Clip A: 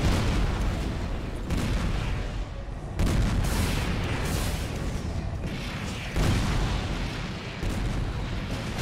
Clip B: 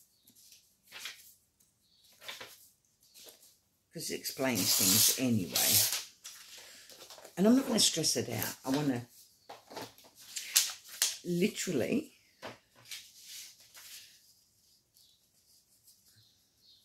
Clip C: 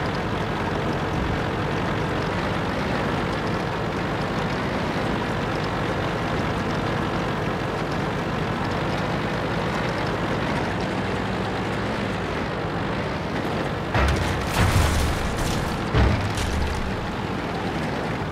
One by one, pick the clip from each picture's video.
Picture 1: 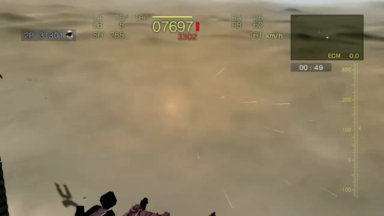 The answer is A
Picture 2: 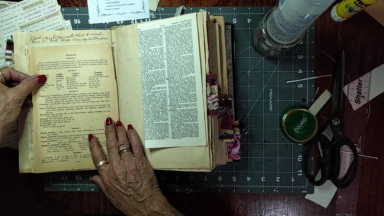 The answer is B